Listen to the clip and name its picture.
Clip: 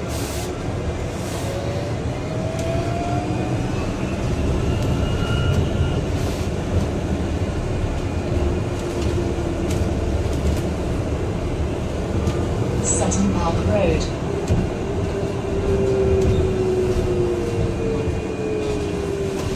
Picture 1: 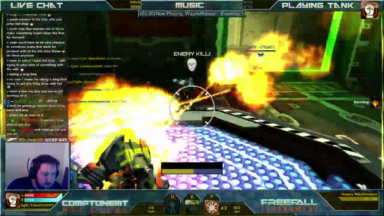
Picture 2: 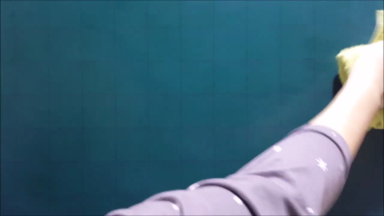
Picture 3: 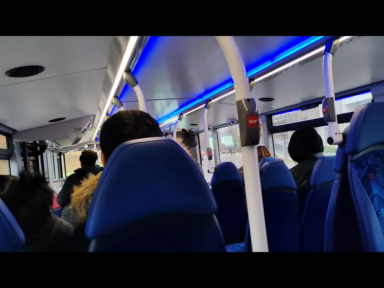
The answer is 3